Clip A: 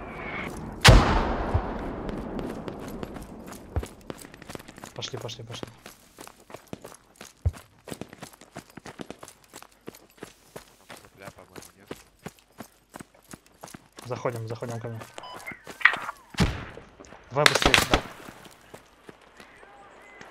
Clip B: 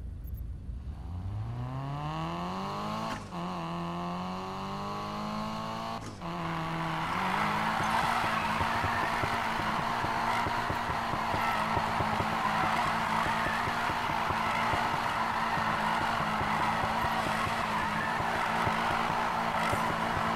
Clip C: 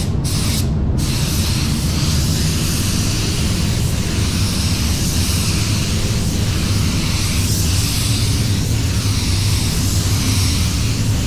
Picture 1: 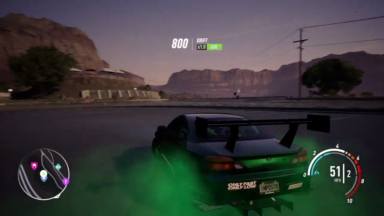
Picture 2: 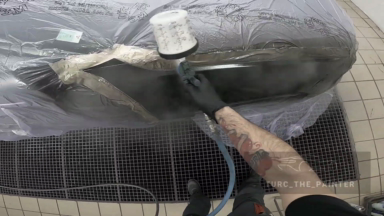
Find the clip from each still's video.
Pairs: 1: B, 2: C